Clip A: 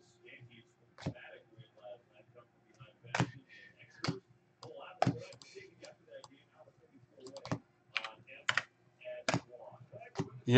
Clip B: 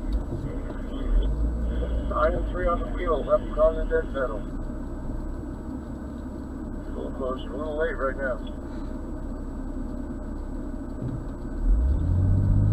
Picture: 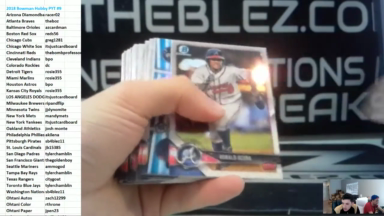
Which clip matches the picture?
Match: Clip A